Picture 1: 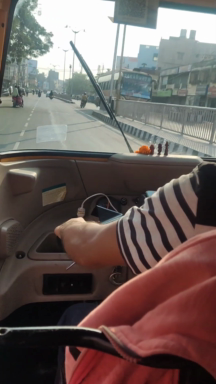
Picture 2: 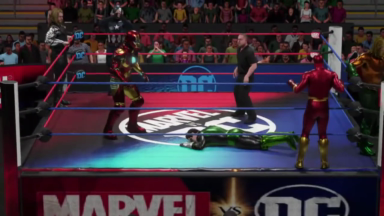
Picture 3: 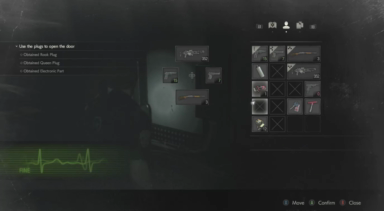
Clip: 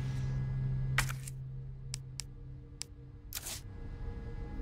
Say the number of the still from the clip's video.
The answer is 3